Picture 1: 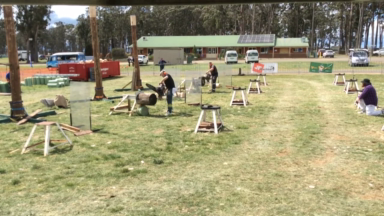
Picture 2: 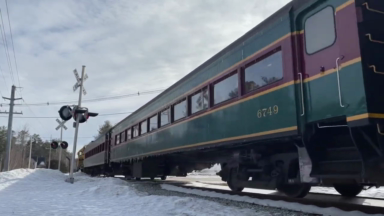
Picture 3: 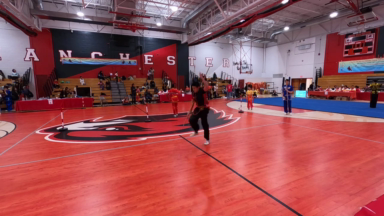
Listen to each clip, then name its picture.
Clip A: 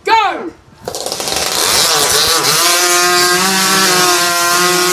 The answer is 1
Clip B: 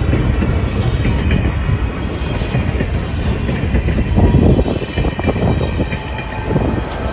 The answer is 2